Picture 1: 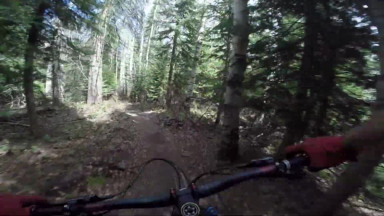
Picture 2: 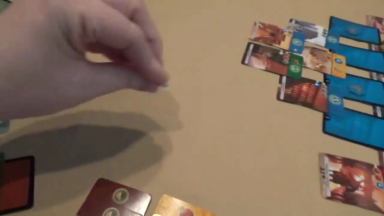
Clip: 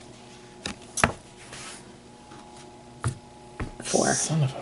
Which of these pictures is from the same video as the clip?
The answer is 2